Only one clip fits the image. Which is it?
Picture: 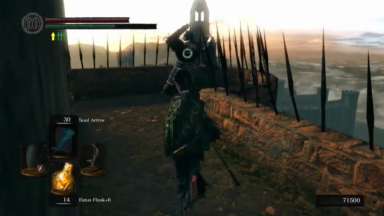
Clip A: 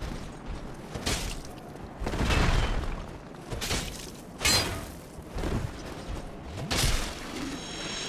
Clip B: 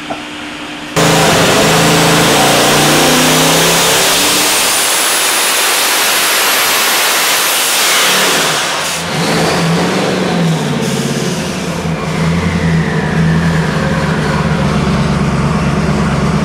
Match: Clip A